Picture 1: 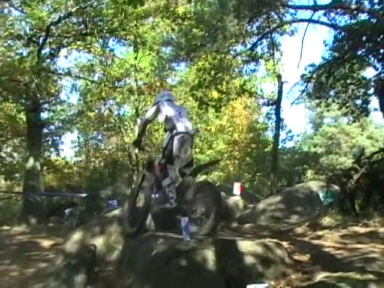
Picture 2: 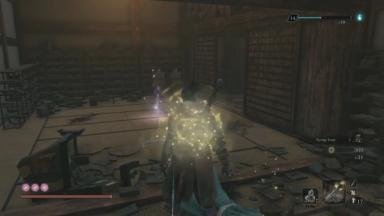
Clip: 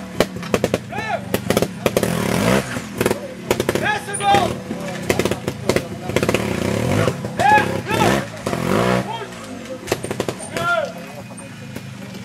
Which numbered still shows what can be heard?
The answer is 1